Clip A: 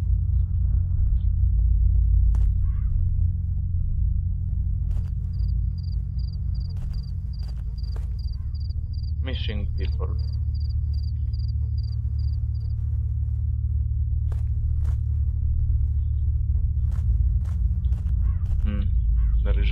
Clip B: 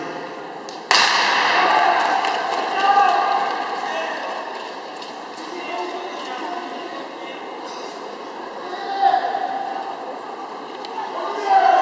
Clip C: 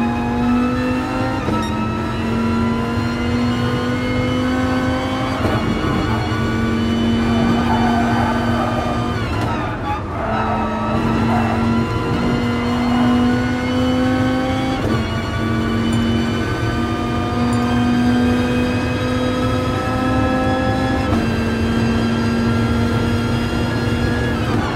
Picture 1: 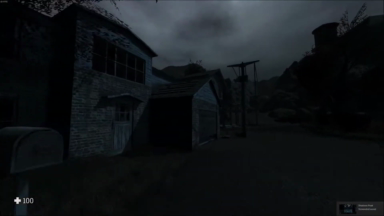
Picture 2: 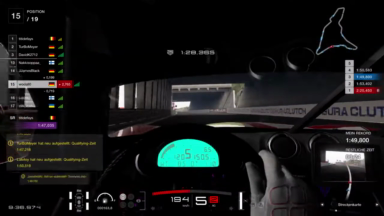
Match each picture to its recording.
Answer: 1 A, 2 C